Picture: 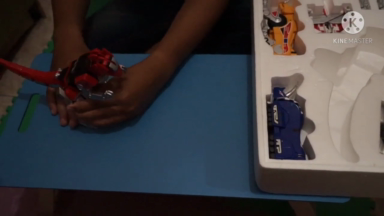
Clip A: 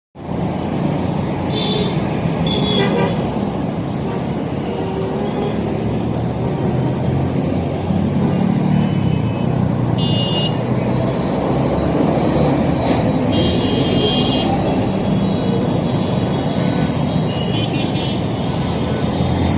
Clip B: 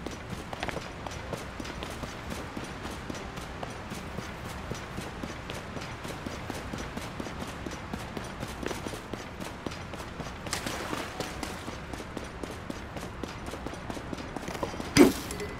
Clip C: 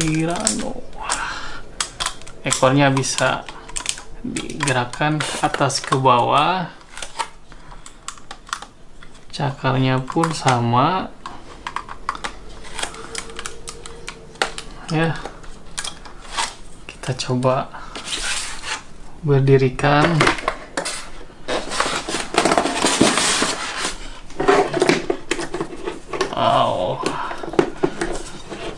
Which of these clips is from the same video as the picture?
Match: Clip C